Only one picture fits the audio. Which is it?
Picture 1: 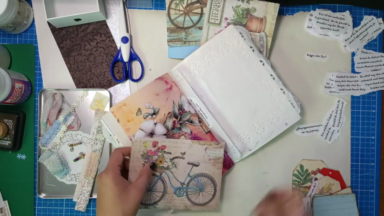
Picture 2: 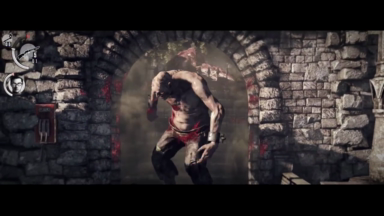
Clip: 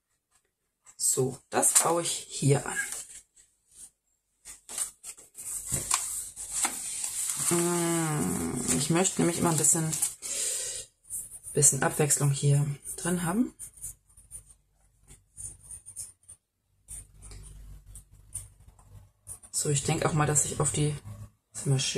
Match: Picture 1